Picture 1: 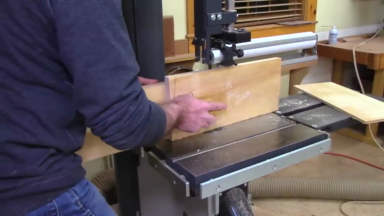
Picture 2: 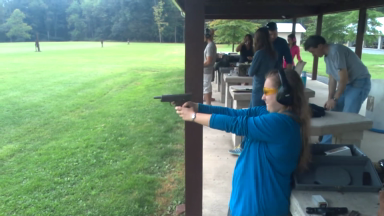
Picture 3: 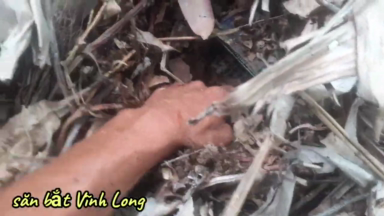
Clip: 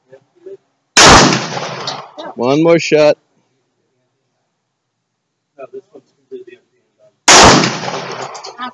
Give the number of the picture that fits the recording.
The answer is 2